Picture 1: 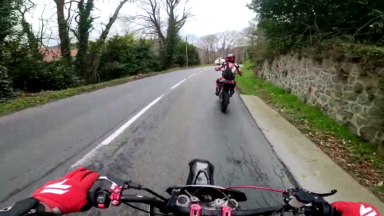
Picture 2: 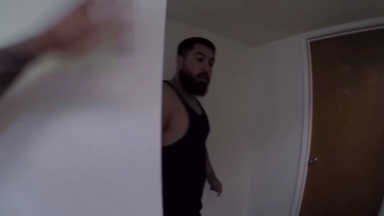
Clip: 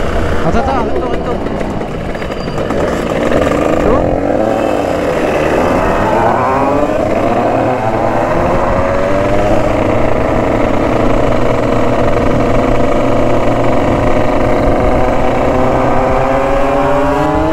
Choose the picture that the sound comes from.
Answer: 1